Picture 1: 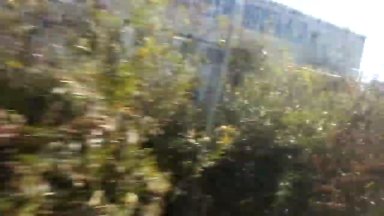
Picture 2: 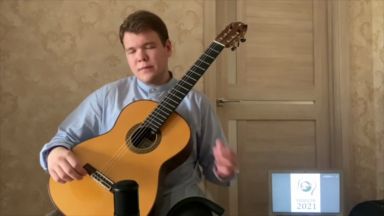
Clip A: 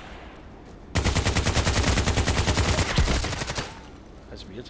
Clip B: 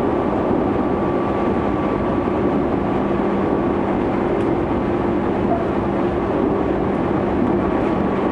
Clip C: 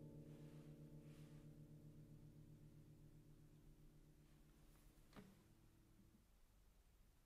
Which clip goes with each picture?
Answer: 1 B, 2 C